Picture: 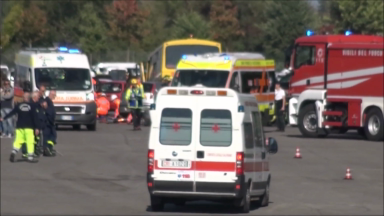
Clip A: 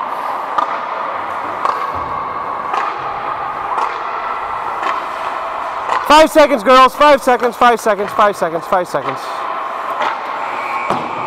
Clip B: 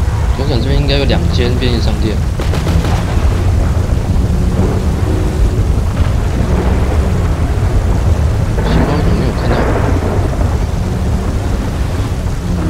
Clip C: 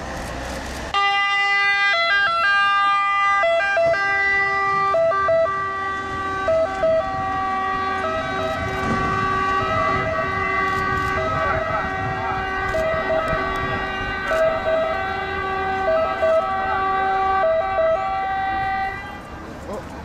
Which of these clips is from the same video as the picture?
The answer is C